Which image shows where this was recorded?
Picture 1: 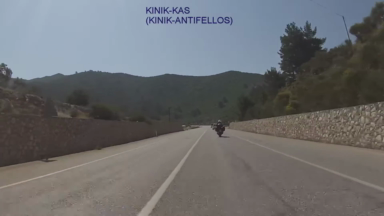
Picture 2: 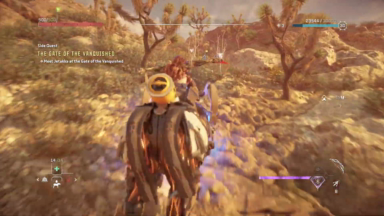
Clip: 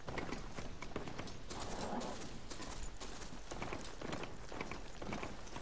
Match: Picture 2